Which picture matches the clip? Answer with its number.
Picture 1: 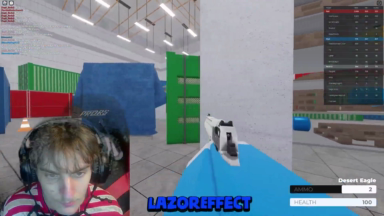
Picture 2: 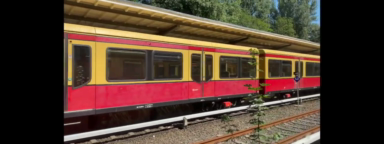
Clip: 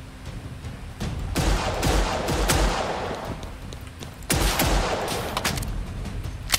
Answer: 1